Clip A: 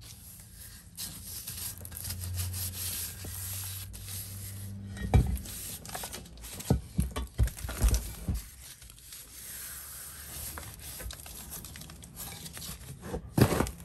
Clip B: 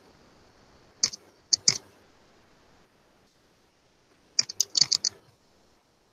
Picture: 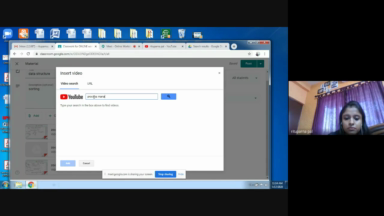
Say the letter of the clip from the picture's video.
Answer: B